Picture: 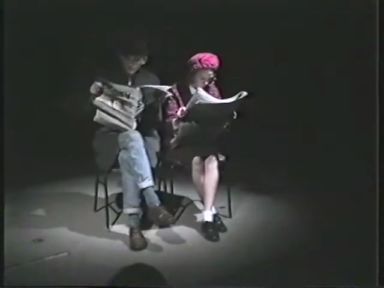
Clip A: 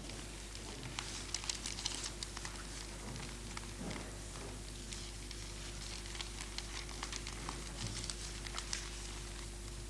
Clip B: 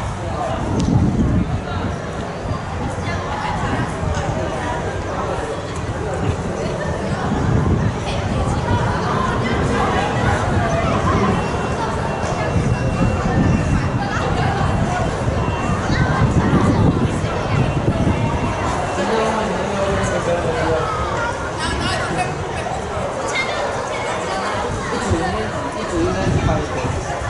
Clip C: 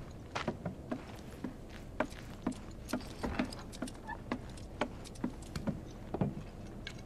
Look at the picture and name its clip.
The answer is A